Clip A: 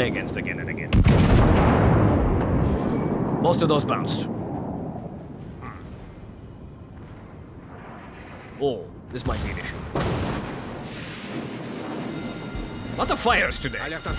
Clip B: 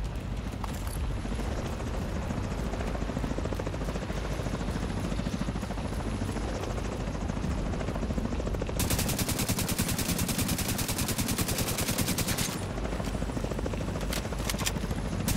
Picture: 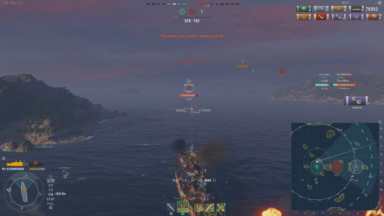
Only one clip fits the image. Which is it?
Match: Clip A